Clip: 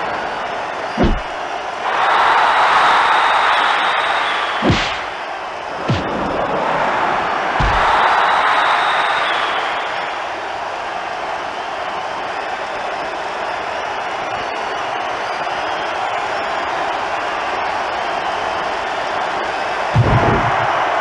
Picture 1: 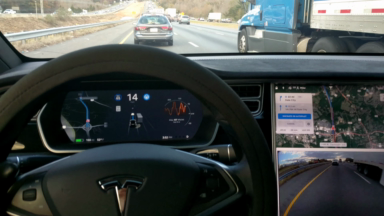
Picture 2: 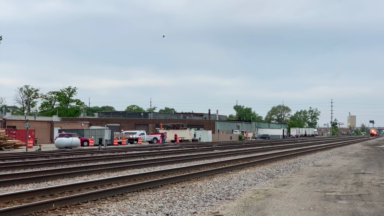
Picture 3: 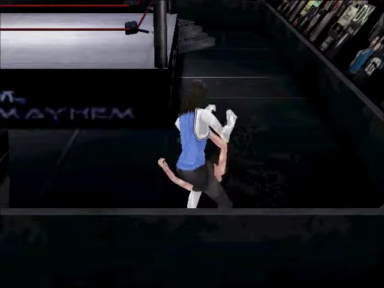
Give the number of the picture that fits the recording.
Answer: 3